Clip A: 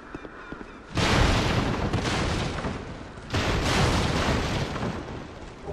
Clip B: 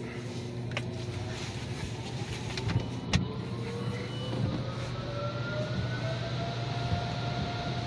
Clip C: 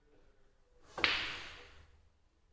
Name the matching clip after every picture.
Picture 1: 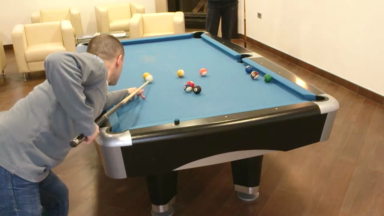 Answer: C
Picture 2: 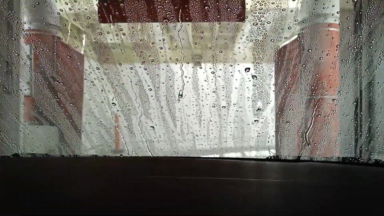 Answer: B